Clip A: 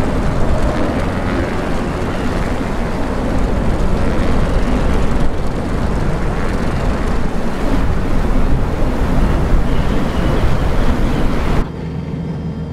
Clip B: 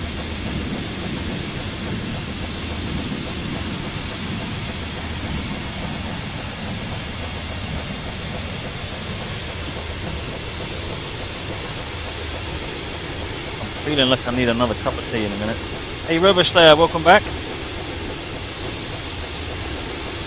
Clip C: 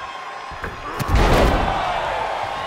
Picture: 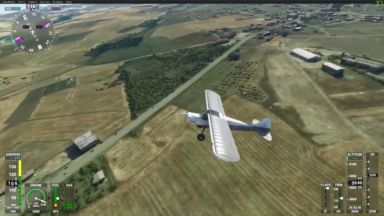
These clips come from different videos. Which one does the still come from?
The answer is A